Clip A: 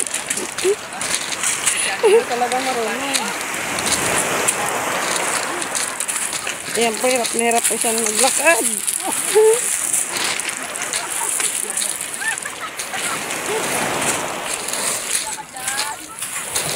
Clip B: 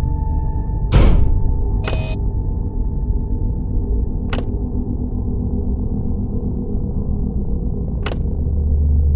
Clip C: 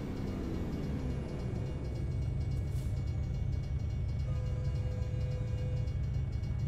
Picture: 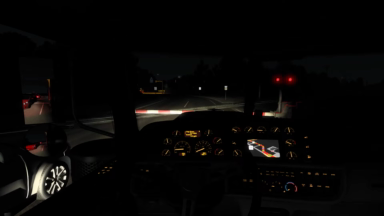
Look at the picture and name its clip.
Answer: C